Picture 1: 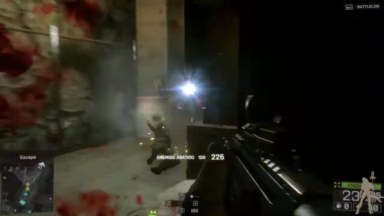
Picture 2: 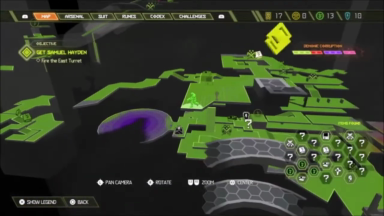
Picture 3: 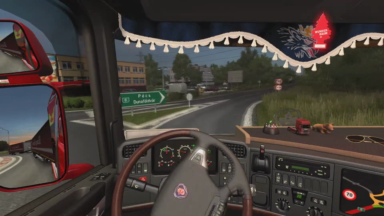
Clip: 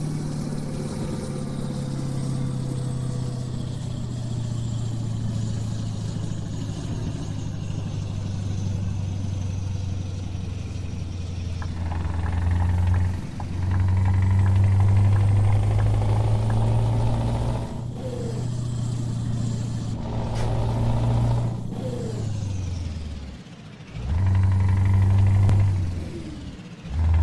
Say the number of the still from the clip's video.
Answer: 3